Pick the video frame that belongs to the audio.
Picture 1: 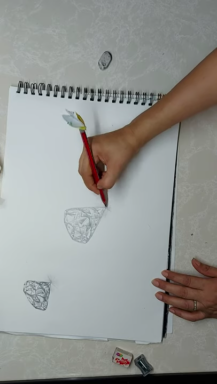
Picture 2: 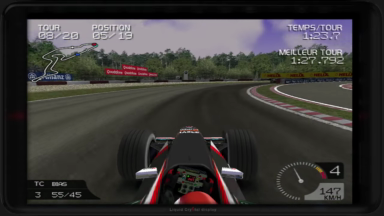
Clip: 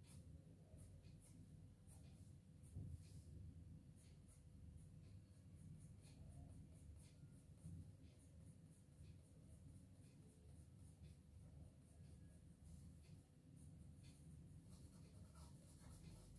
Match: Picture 1